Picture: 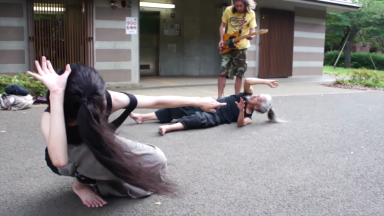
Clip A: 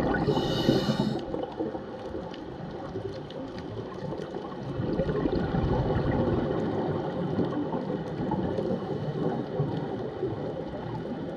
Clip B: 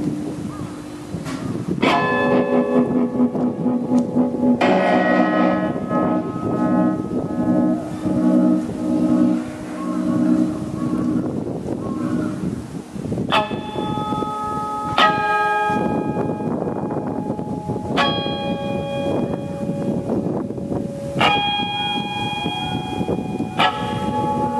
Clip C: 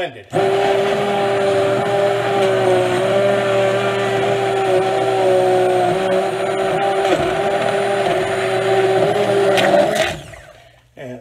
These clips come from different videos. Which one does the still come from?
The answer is B